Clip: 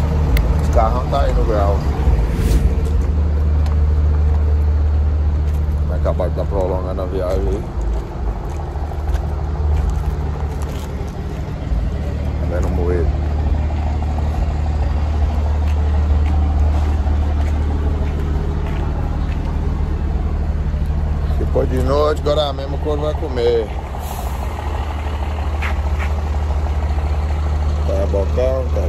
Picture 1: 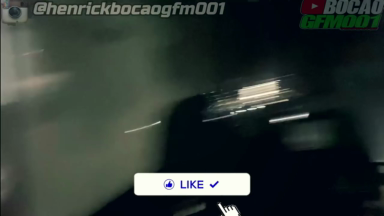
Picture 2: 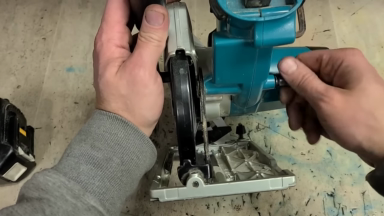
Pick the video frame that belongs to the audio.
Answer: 1